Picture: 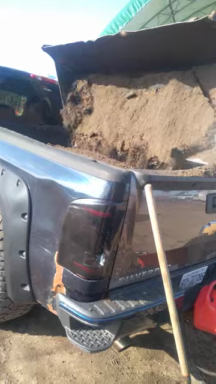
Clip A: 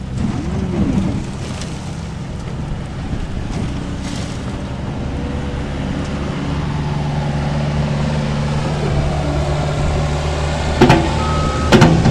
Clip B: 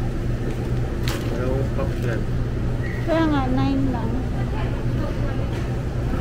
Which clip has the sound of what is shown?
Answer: A